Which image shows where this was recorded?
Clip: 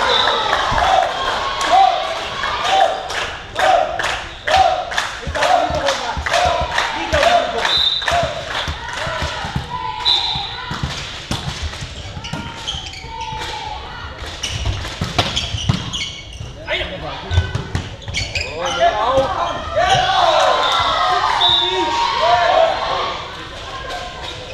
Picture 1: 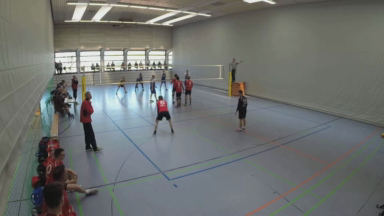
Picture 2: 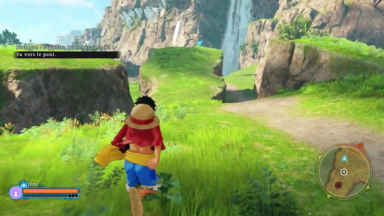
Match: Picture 1